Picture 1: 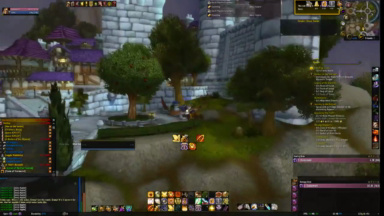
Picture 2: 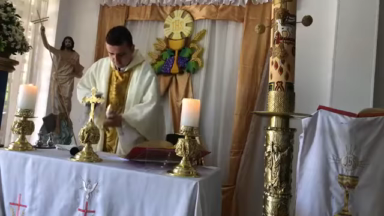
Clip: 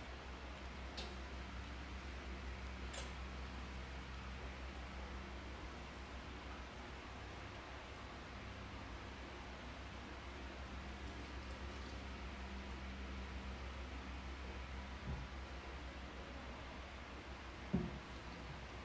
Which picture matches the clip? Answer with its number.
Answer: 2